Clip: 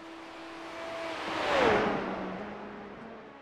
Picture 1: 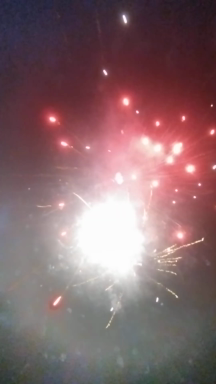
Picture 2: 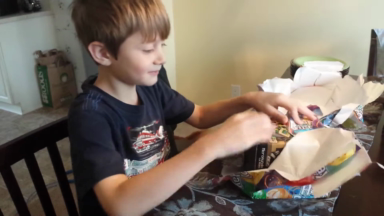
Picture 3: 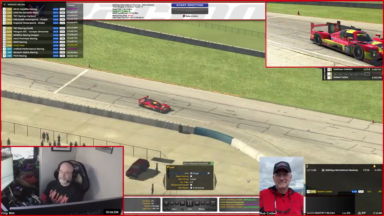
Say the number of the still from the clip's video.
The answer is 3